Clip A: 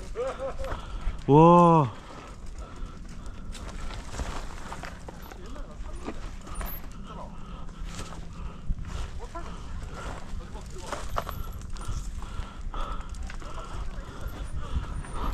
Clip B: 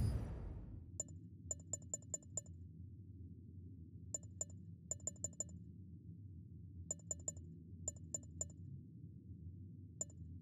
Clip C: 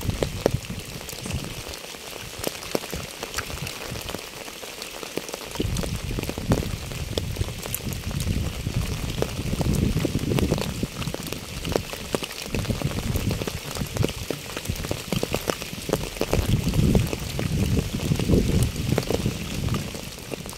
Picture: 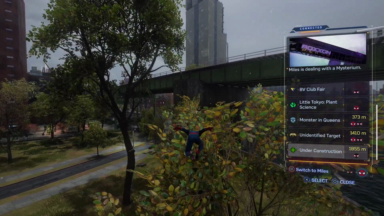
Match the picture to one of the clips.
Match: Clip B